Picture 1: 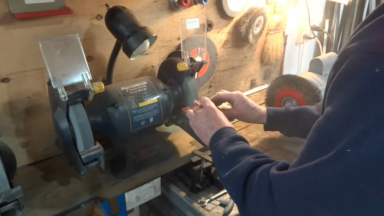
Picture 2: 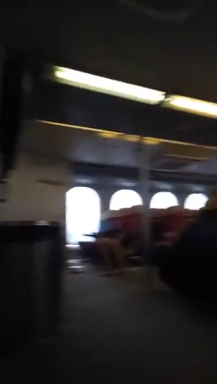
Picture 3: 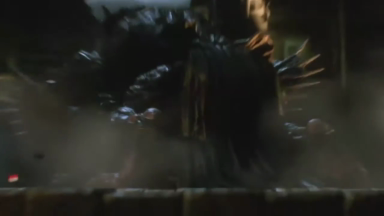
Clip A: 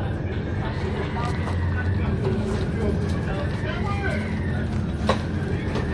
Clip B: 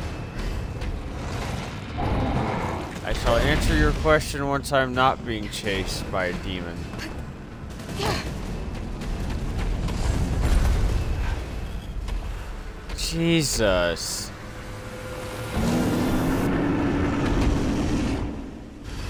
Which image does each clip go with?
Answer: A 2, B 3